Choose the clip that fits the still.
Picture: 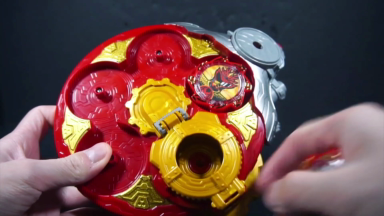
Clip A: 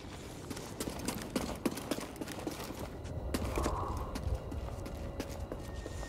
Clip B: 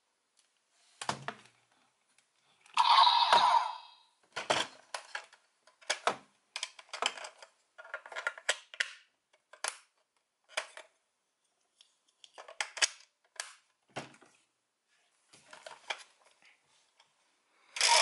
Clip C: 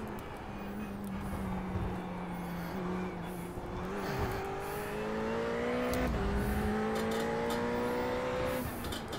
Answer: B